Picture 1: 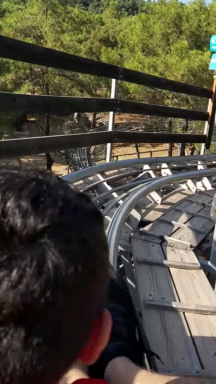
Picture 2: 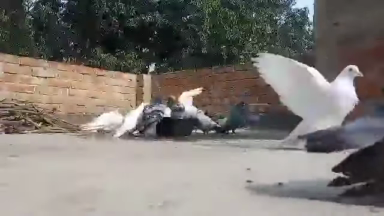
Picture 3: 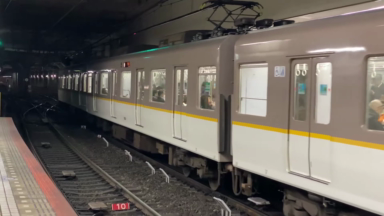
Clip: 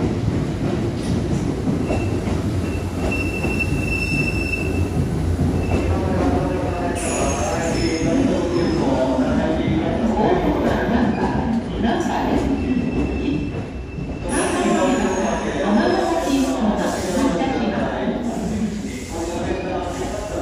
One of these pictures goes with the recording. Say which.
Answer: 3